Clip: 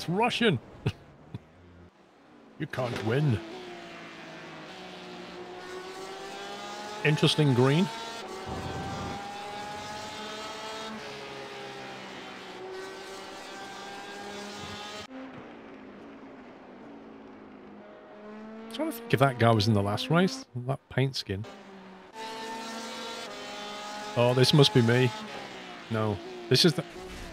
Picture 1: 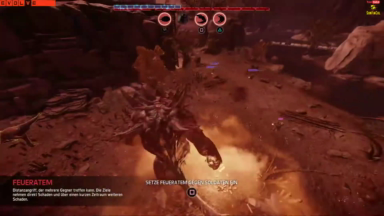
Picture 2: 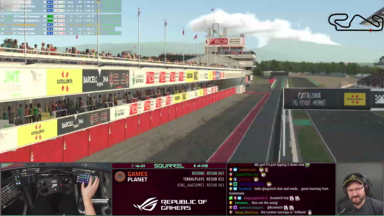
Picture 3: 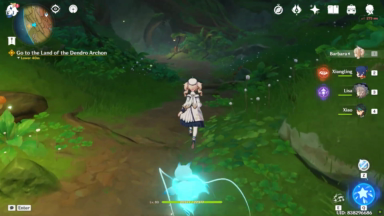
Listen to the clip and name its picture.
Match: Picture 2